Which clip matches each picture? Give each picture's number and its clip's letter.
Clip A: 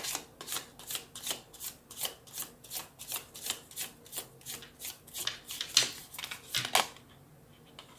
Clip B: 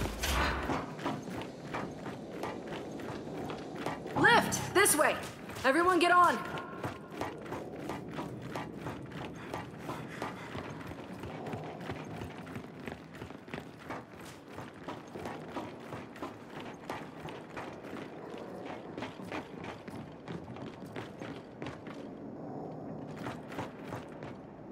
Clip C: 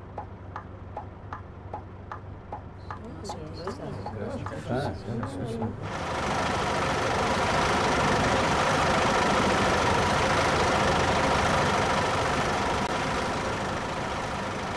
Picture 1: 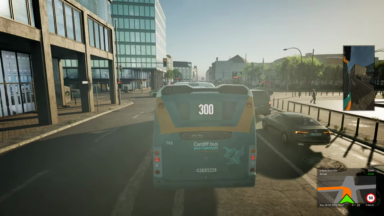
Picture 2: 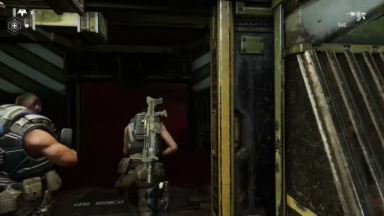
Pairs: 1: C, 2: B